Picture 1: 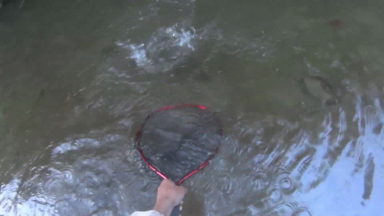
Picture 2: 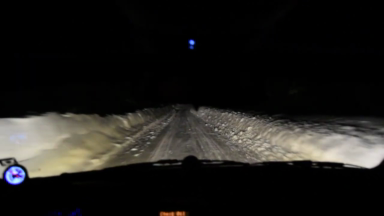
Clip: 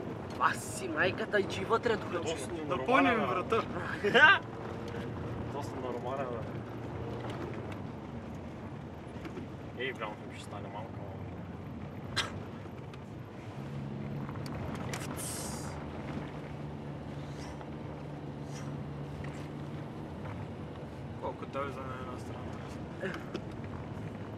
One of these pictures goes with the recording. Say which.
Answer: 2